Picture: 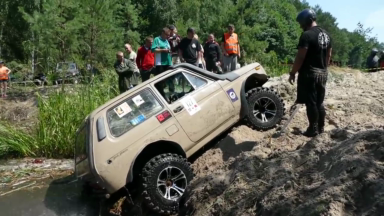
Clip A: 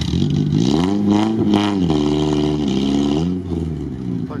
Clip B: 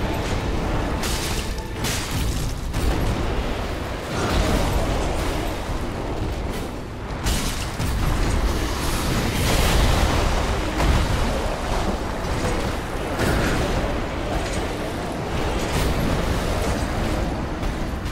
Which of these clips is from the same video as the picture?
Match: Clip A